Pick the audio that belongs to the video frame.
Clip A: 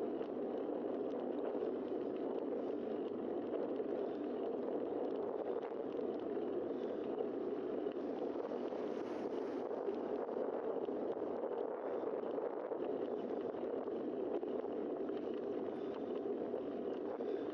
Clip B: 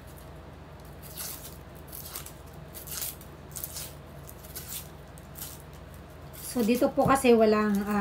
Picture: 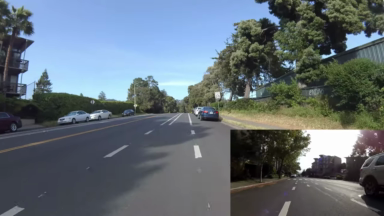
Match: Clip A